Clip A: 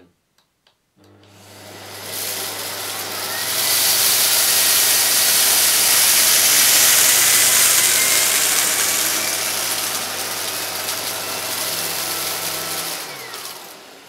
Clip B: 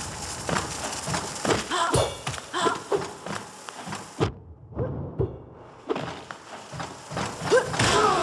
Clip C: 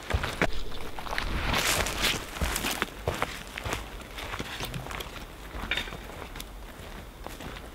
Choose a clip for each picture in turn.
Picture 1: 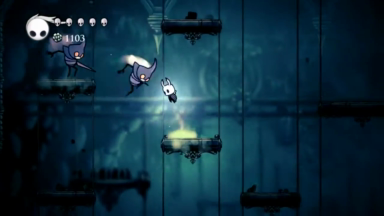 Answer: B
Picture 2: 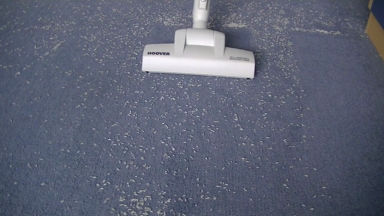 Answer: A